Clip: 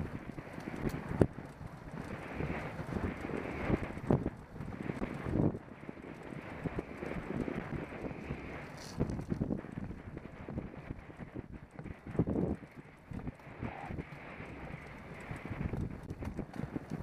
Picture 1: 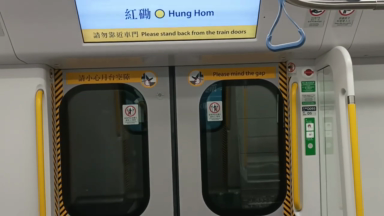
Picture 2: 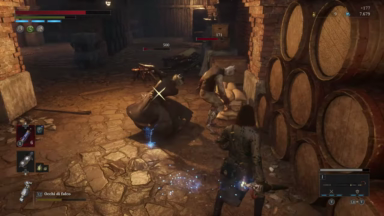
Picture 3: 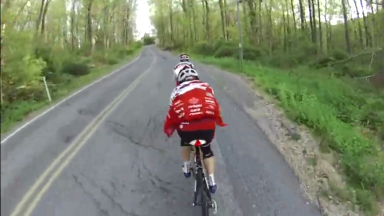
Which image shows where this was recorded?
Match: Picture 3